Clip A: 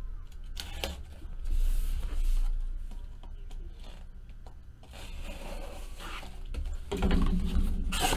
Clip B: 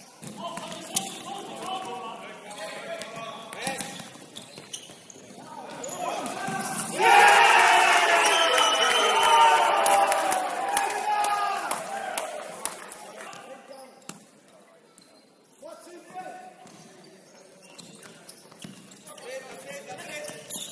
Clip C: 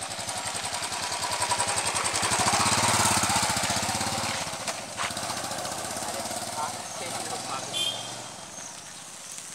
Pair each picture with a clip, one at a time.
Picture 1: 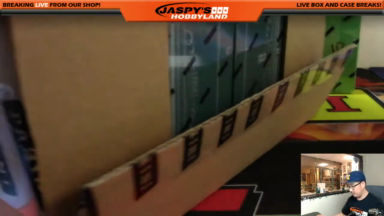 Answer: A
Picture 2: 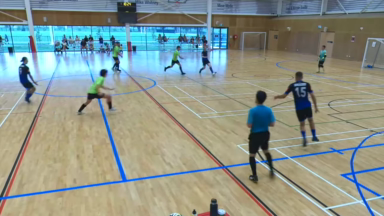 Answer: B